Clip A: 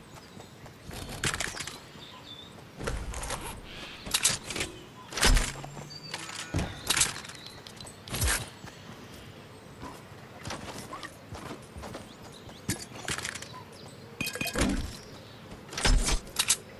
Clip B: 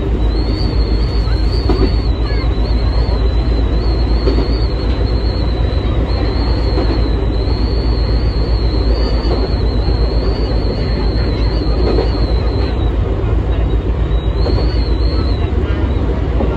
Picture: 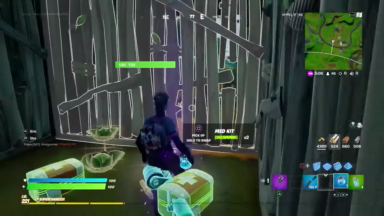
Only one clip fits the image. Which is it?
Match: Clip A